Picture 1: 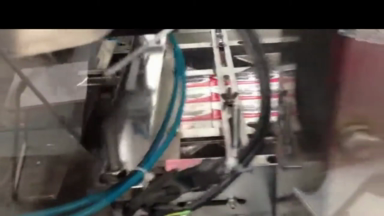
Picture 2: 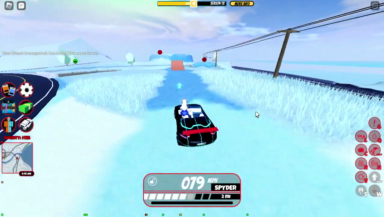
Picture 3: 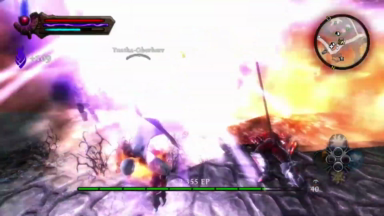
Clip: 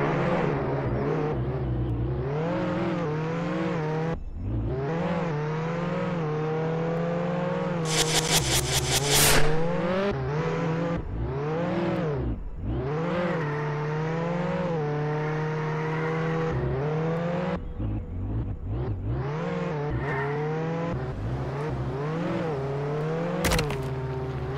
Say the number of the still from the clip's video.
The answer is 2